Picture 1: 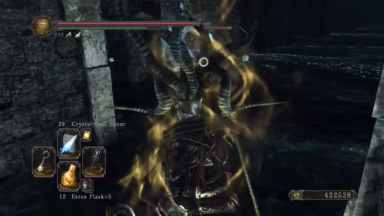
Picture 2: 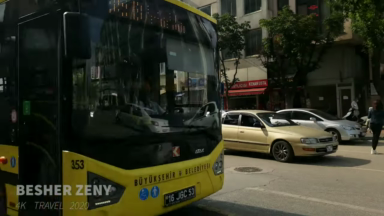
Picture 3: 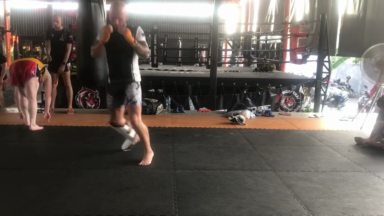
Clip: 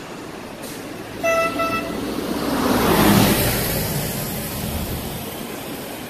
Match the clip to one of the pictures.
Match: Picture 2